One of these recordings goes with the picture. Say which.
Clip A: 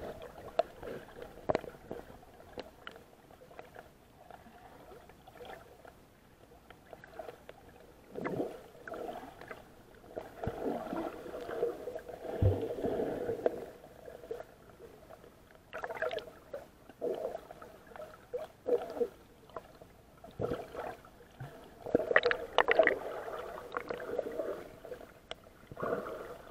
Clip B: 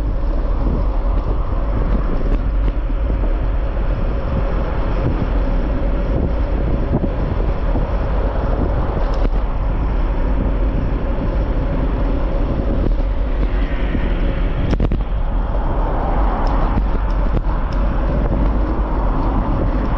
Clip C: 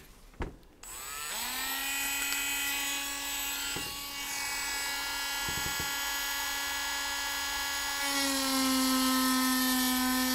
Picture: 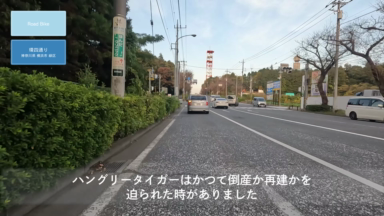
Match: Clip B